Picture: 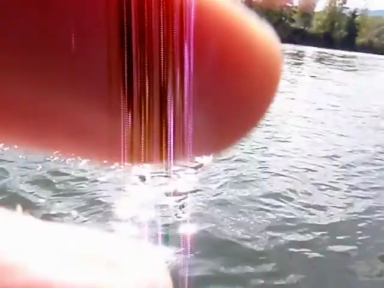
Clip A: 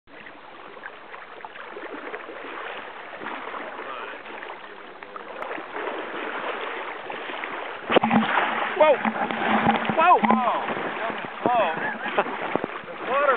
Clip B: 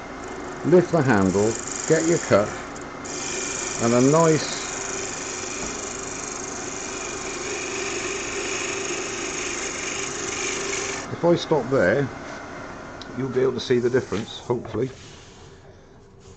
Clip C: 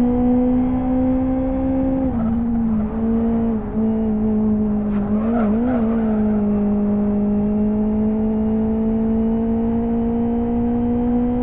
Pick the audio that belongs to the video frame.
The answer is A